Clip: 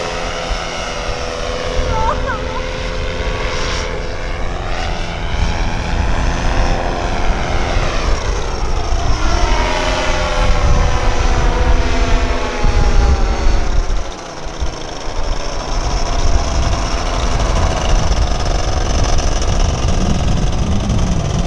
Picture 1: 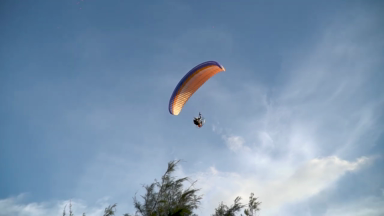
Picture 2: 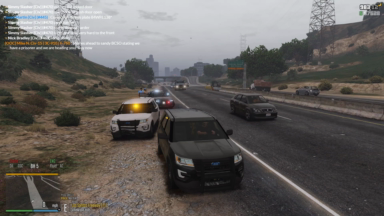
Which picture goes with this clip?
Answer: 1